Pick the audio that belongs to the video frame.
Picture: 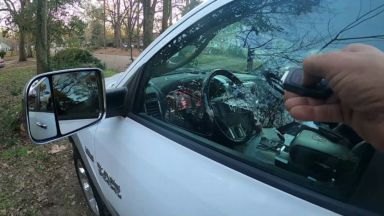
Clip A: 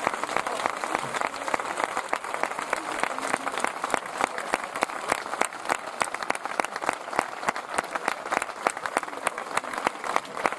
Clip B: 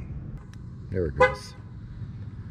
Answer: B